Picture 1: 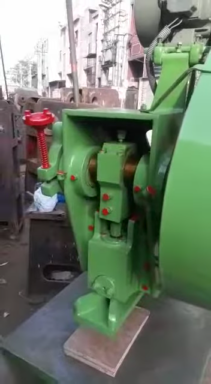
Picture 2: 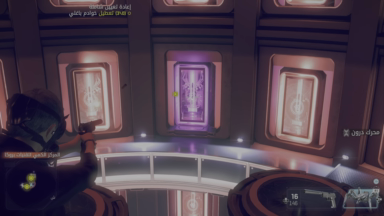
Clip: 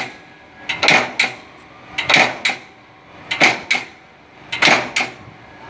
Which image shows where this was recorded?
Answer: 1